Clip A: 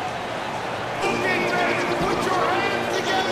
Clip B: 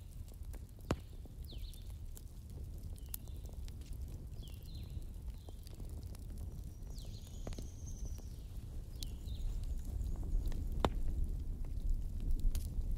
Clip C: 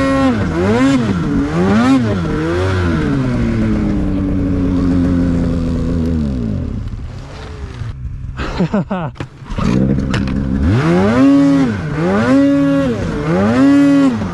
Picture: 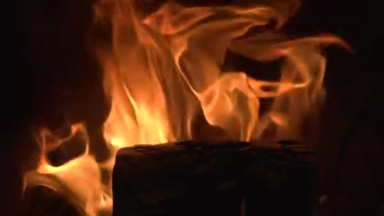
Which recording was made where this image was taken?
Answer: B